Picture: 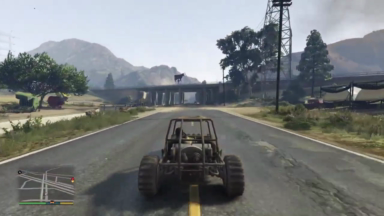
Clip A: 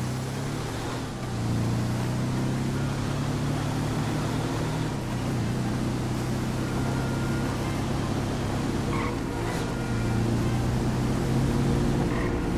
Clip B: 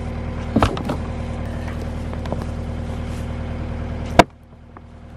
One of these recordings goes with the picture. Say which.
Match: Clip A